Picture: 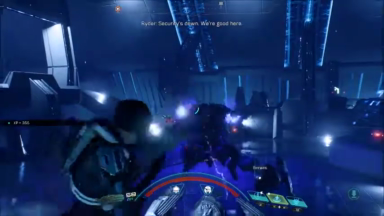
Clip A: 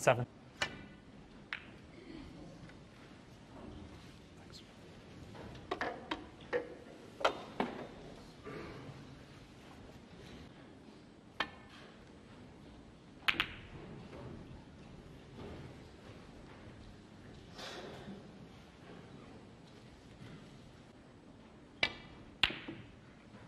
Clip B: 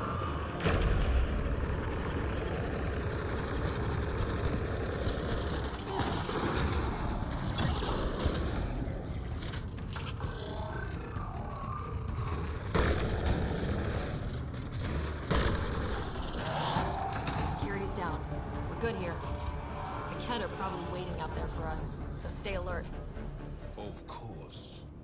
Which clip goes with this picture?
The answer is B